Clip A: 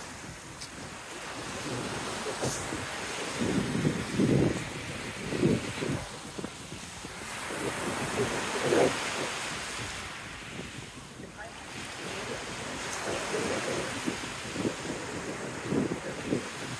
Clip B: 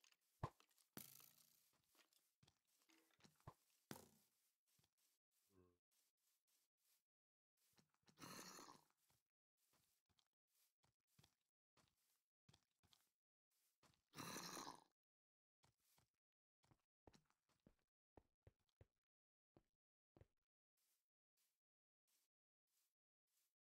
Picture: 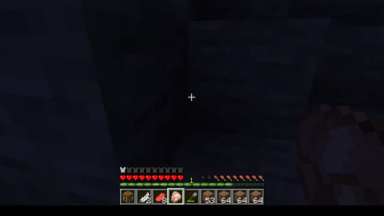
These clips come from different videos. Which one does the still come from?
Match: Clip B